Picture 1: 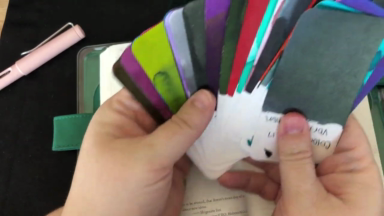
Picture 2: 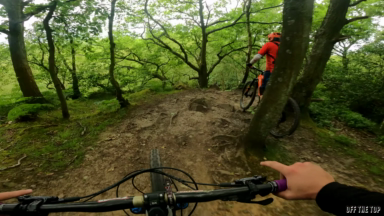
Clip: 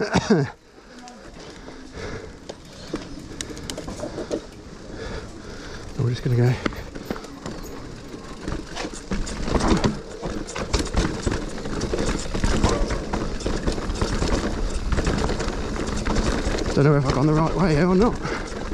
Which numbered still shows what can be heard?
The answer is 2